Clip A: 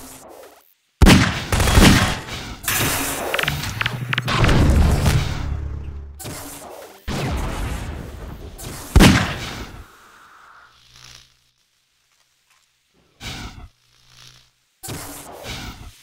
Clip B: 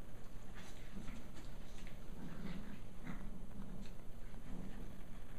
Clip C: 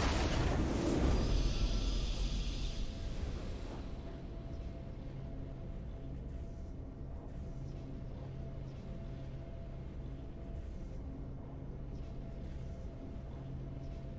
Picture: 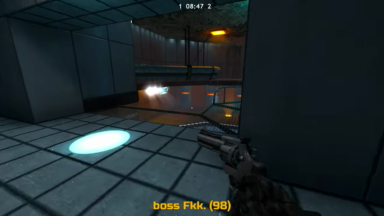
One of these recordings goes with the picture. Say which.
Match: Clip A